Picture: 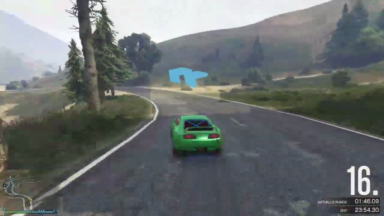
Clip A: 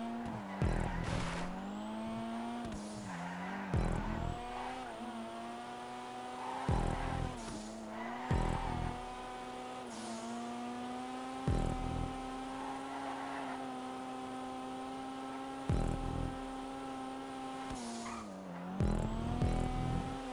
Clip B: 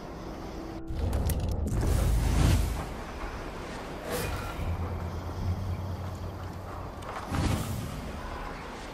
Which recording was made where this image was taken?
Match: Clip A